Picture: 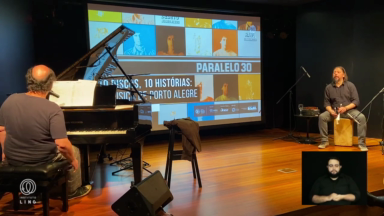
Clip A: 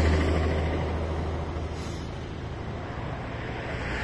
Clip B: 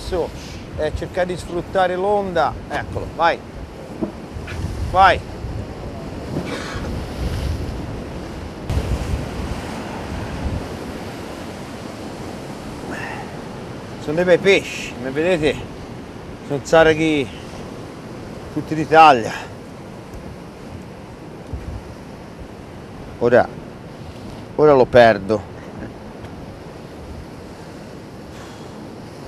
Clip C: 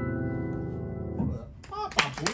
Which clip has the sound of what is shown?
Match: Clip C